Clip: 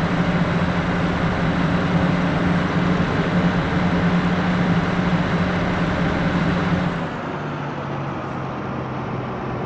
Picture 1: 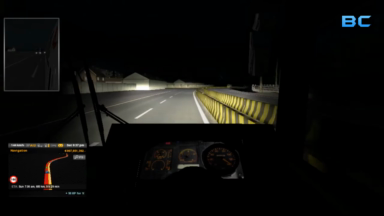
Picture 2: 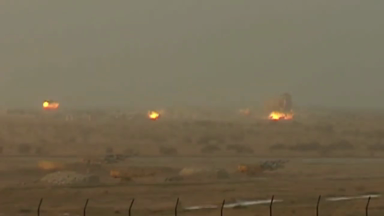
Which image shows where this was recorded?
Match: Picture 1